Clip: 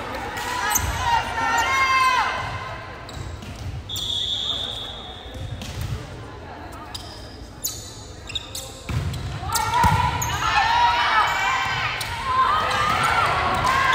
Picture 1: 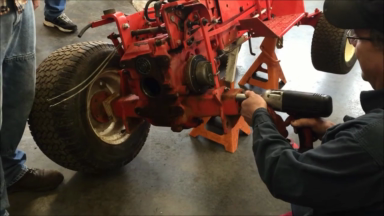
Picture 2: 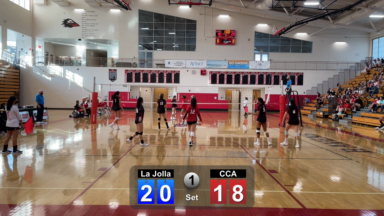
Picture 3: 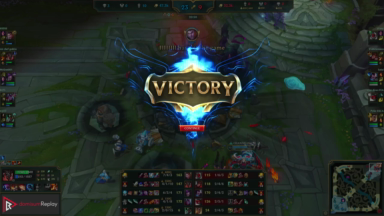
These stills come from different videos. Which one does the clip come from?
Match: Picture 2